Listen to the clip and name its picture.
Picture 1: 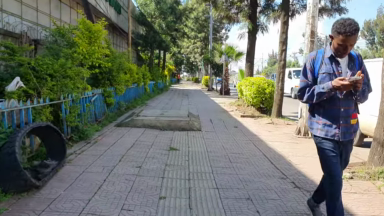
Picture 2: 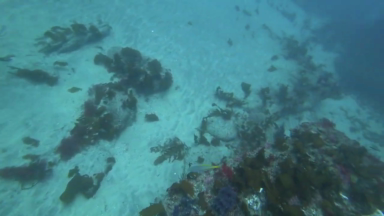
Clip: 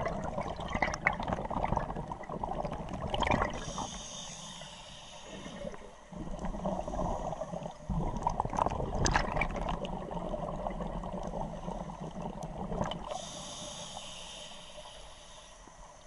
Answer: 2